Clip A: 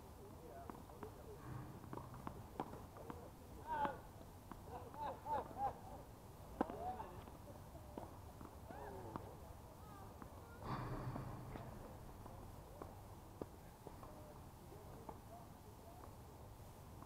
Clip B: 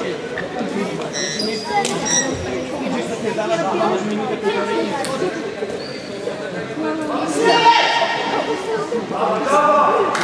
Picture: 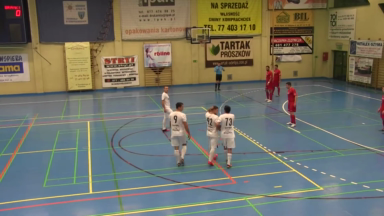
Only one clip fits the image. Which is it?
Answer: B